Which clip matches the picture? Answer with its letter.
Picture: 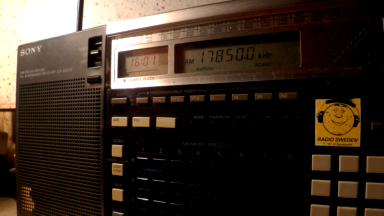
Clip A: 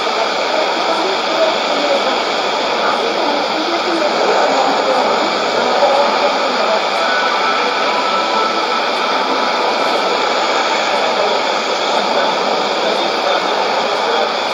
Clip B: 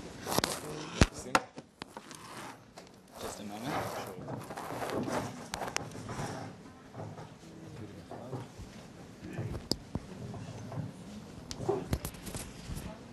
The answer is A